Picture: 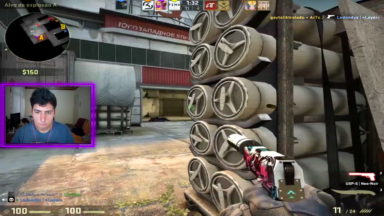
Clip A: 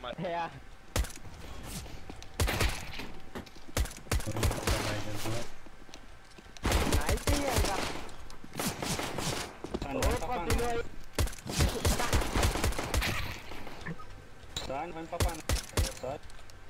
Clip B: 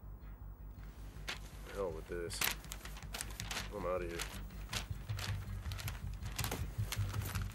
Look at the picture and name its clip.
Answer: A